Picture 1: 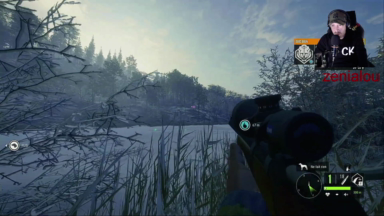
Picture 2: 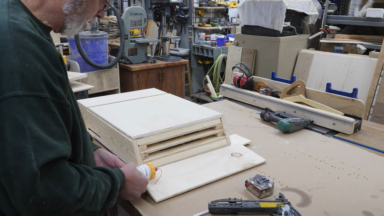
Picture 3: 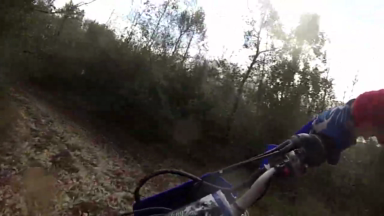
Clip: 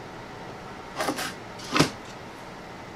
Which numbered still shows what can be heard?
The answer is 2